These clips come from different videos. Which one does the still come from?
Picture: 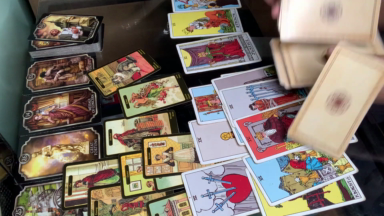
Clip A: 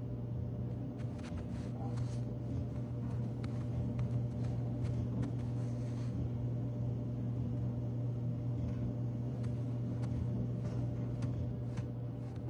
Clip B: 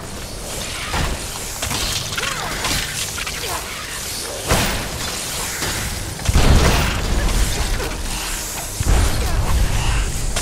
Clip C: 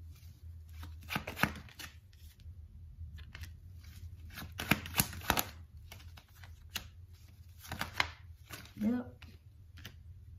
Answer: C